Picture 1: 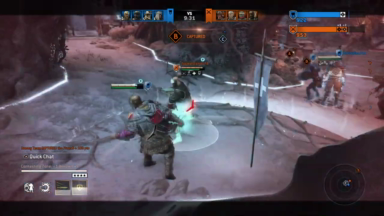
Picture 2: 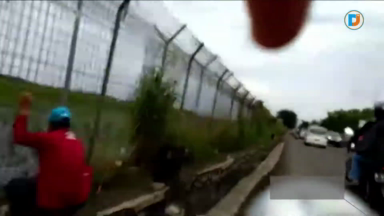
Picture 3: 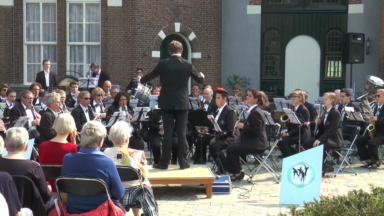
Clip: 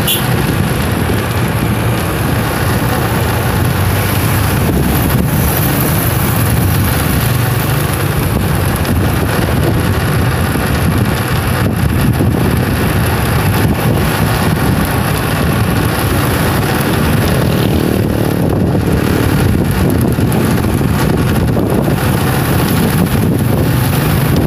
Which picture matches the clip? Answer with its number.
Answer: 2